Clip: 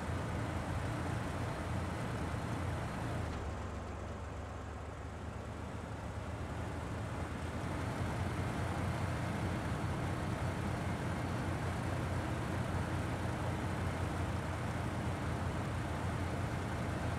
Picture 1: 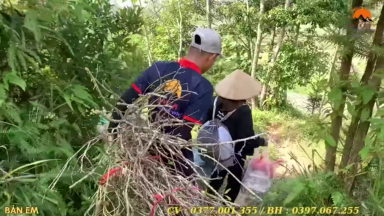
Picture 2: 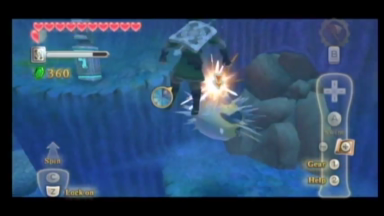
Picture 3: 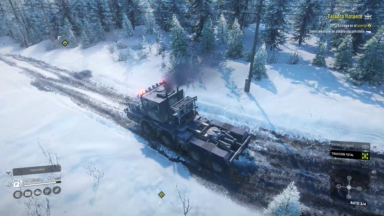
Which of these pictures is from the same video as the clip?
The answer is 3